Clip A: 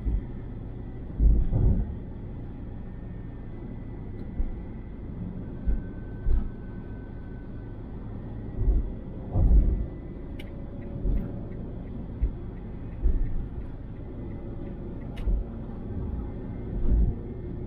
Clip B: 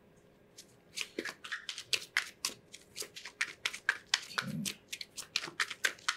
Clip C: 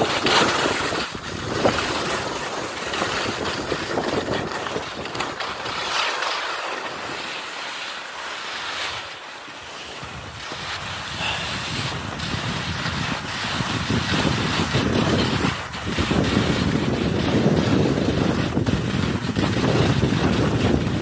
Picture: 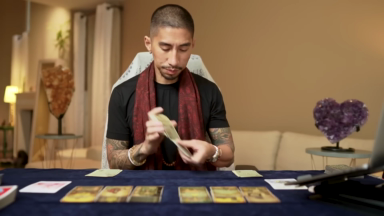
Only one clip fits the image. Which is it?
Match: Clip B